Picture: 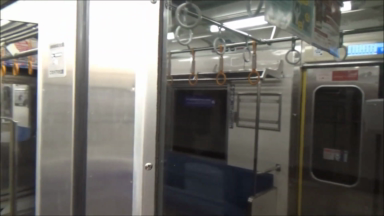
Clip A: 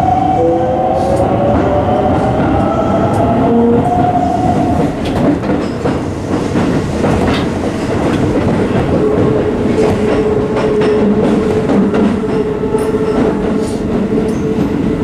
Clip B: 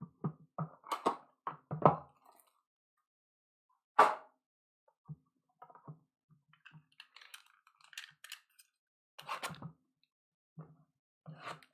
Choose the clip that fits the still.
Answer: A